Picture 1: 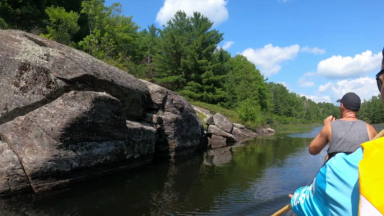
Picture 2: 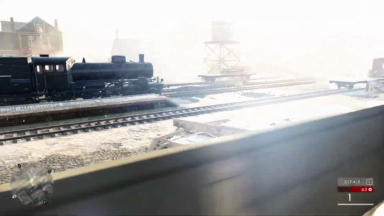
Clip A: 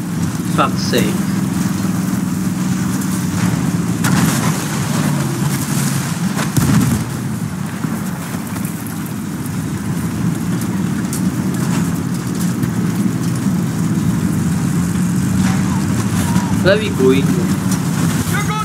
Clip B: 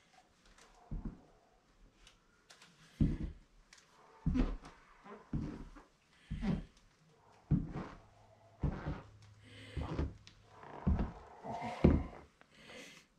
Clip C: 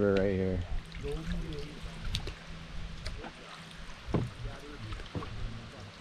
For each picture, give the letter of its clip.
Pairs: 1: C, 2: A